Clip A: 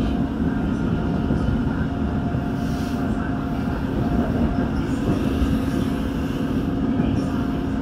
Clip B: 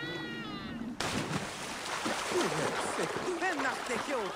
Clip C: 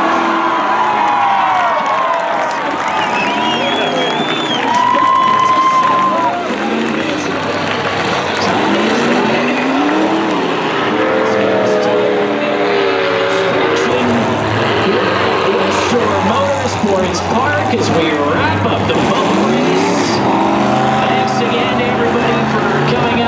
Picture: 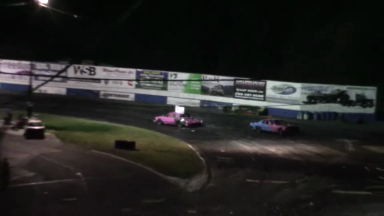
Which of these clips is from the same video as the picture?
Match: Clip C